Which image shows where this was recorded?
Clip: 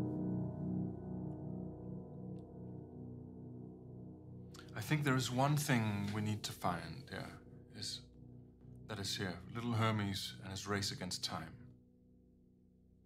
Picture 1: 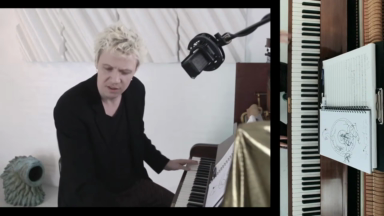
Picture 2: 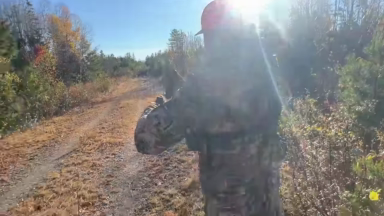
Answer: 1